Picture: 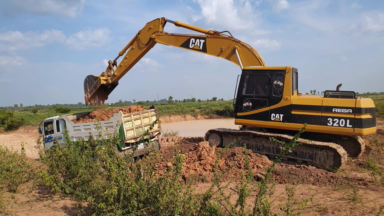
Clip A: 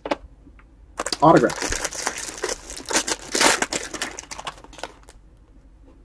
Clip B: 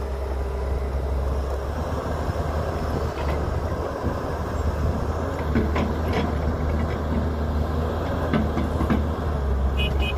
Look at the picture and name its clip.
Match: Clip B